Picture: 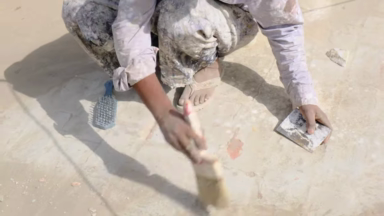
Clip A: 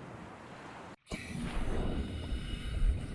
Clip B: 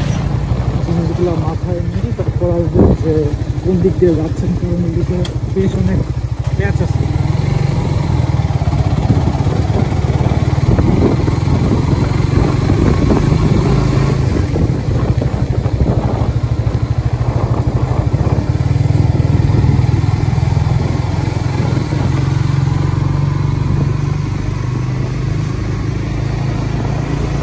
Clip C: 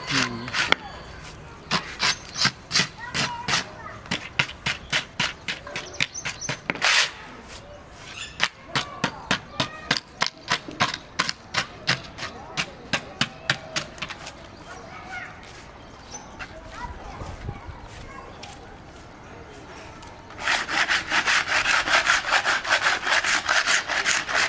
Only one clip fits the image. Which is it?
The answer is C